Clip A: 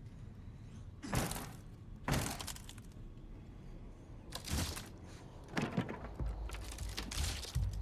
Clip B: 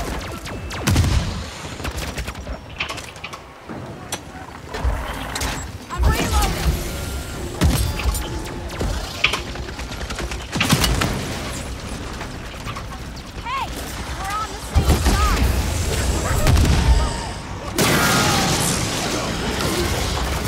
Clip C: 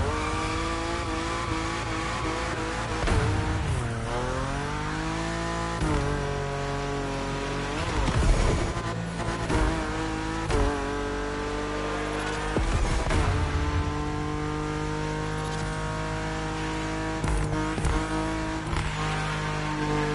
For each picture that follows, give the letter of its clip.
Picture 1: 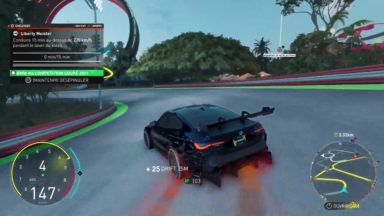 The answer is C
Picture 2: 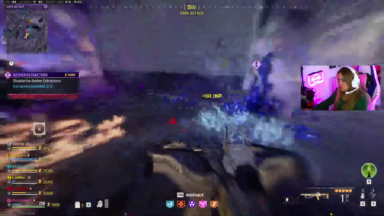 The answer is B